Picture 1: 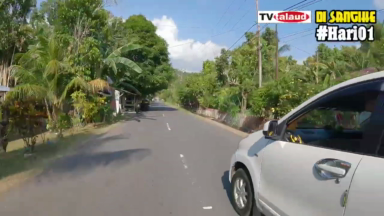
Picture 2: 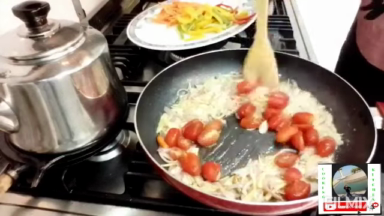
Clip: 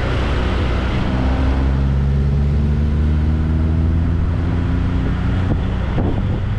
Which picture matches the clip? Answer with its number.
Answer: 1